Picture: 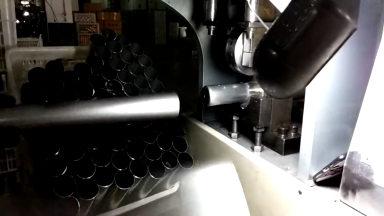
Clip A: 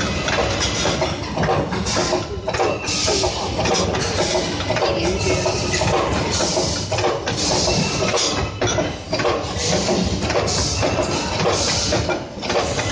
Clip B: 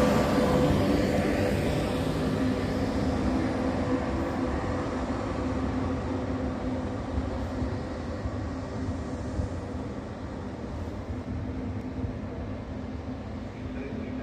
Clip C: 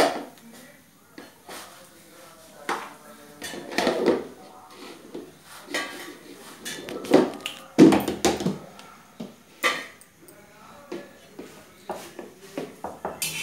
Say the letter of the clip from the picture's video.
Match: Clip A